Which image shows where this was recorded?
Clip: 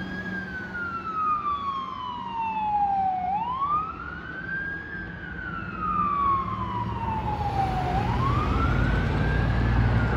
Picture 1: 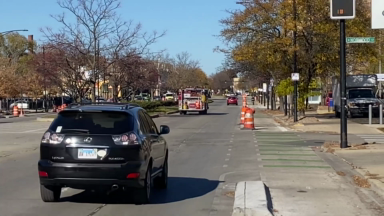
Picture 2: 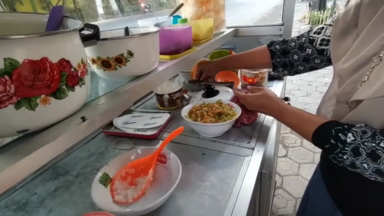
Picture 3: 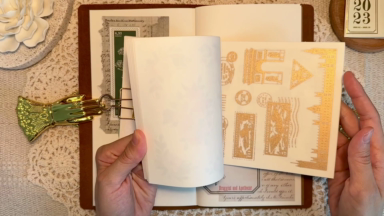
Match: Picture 1